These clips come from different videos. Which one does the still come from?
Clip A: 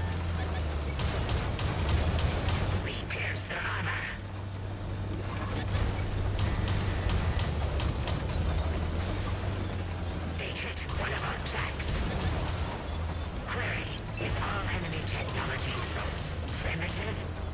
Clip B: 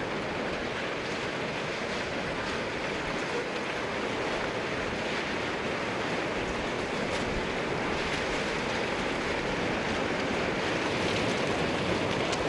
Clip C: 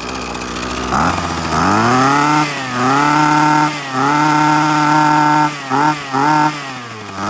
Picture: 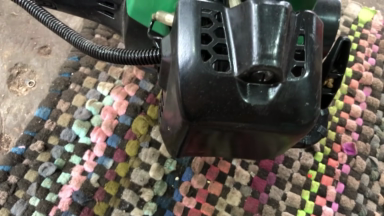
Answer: C